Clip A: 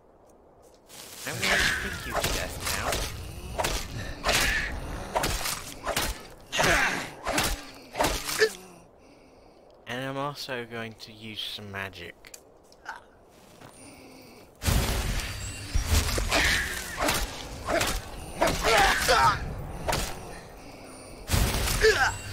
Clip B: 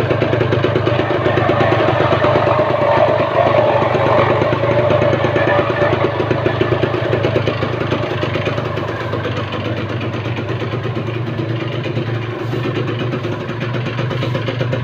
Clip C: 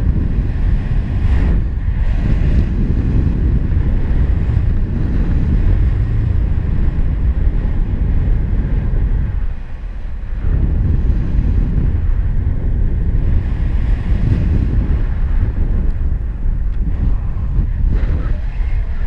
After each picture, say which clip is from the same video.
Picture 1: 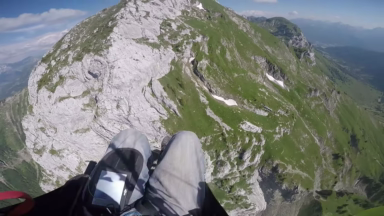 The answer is C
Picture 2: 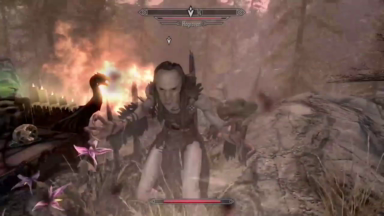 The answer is A